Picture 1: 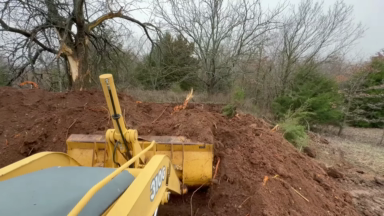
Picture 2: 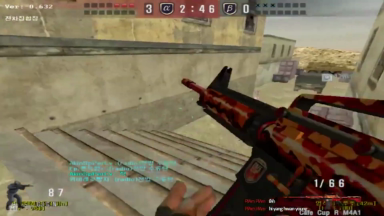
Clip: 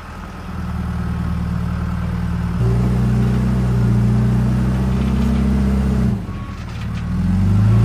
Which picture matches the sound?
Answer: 1